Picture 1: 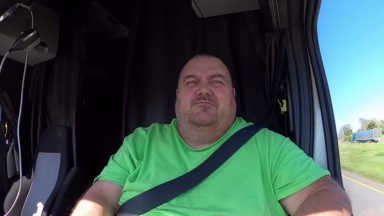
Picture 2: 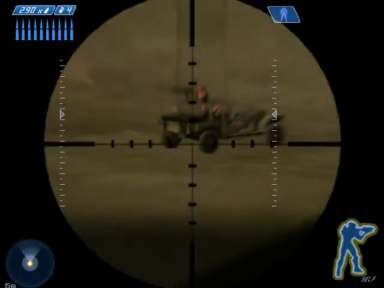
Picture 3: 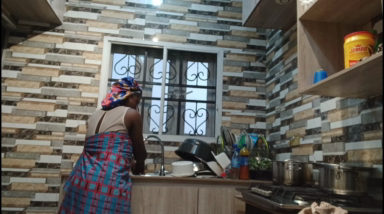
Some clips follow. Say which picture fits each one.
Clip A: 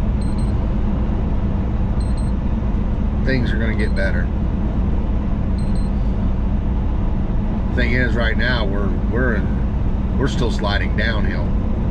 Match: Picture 1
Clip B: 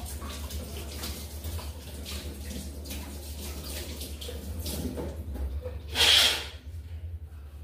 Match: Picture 3